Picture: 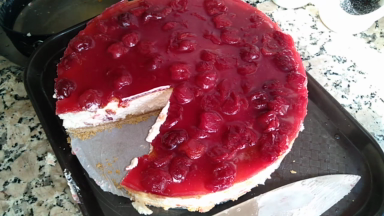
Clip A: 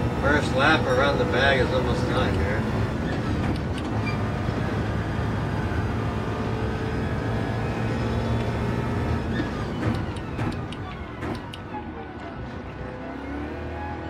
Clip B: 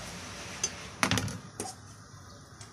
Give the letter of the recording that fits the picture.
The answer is B